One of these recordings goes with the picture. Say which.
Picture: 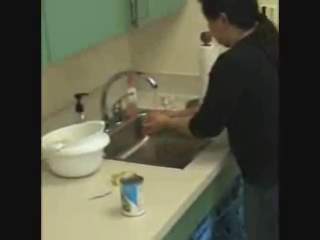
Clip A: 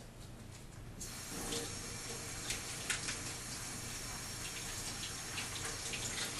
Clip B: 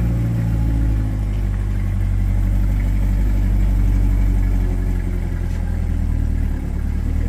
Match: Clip A